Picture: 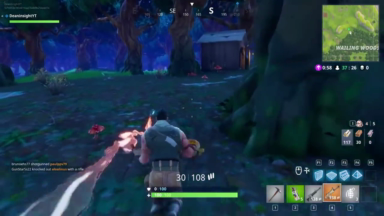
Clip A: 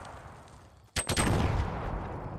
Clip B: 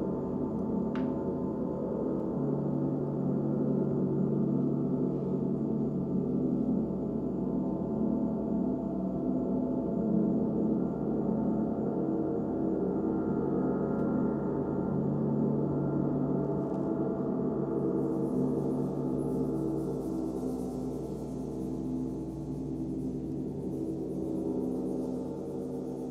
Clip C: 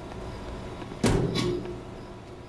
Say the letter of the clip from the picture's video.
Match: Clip A